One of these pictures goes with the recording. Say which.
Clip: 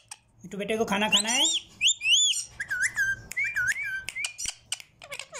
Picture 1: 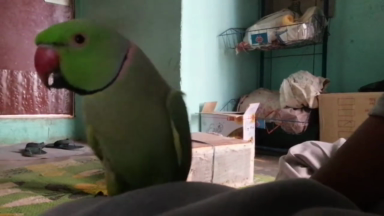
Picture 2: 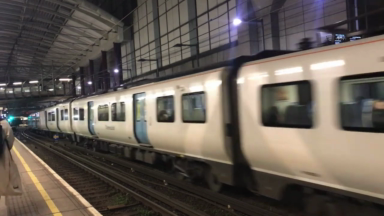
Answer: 1